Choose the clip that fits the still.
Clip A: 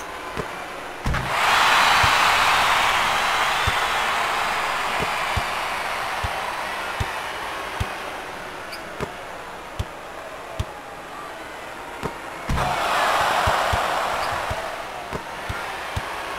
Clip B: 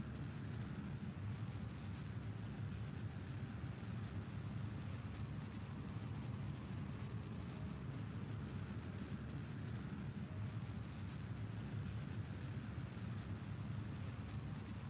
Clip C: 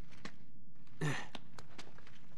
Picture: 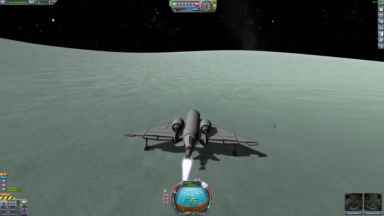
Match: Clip B